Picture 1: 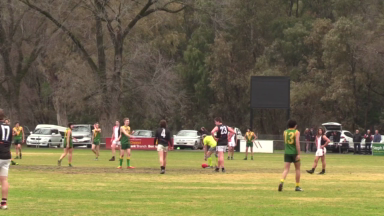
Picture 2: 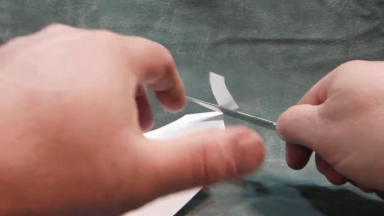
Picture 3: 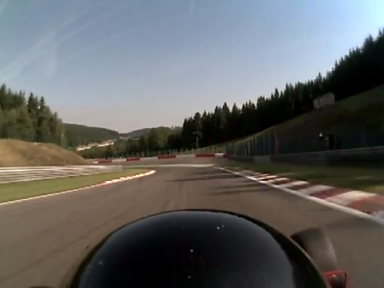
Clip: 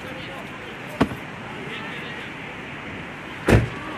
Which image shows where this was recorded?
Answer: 1